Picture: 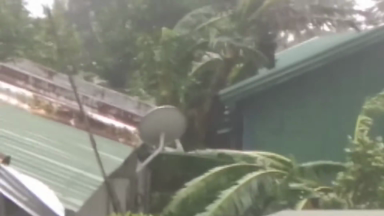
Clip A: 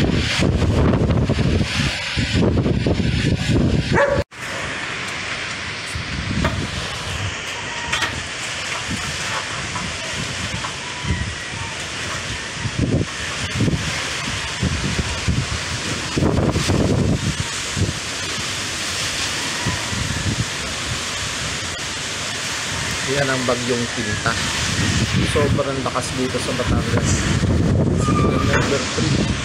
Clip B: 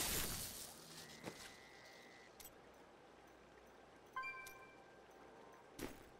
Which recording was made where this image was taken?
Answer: A